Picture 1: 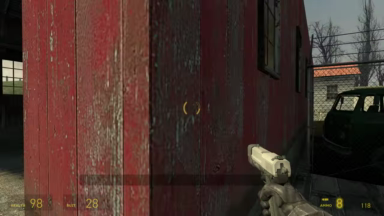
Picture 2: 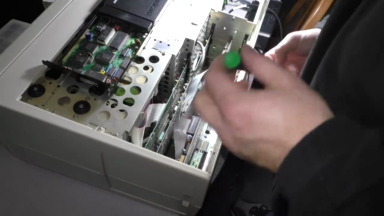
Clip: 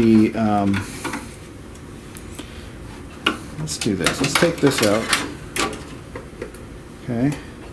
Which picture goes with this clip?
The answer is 2